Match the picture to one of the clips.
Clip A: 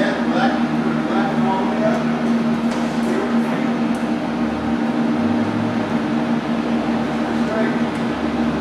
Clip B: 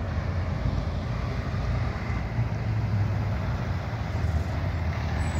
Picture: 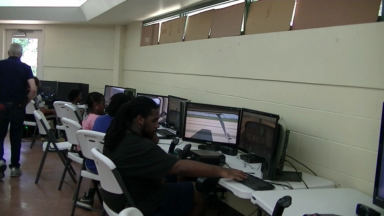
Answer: A